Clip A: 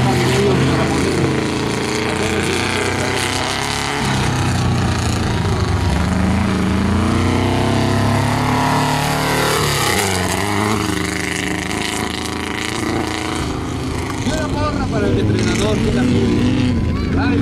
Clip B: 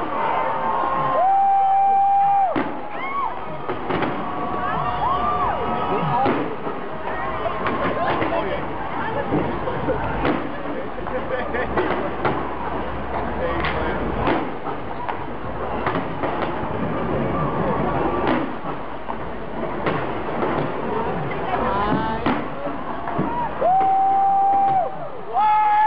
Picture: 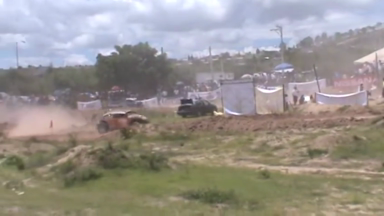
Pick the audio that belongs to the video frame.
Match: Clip A